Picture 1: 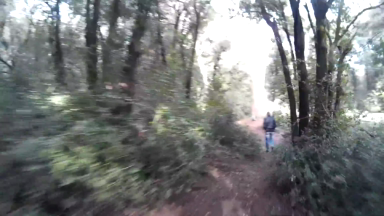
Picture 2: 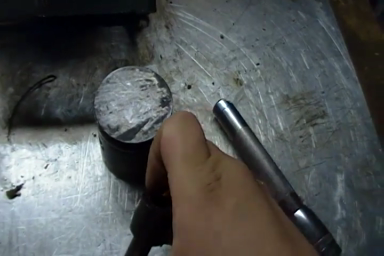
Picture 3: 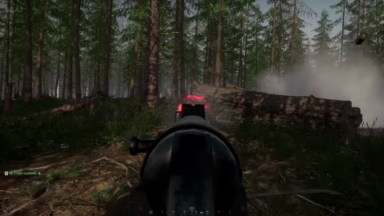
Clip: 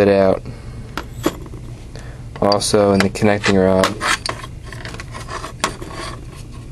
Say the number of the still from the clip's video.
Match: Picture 2